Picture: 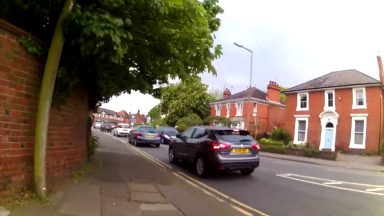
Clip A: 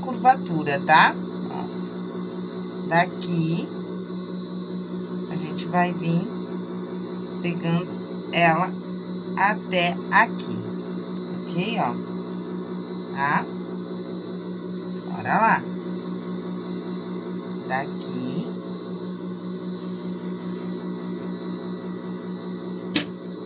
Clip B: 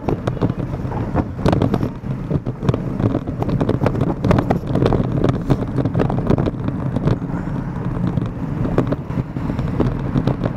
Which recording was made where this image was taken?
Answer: B